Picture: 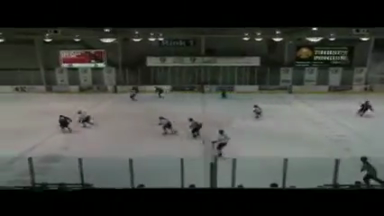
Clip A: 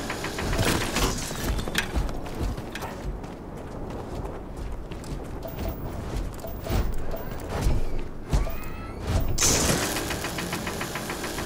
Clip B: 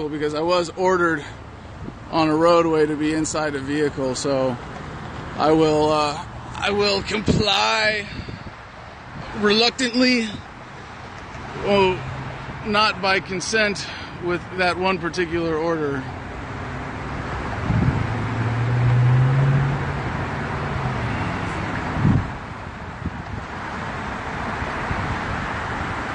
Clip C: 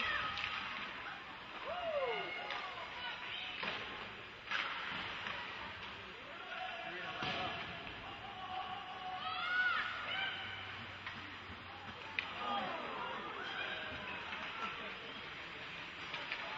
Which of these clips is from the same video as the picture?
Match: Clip C